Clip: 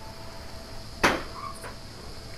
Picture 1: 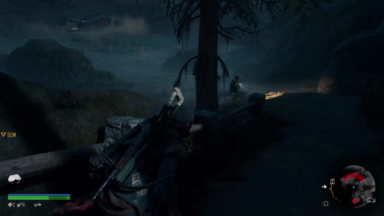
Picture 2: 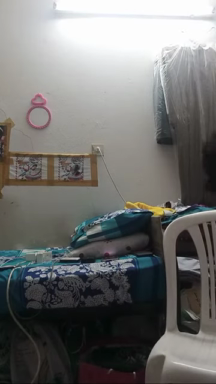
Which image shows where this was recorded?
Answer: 1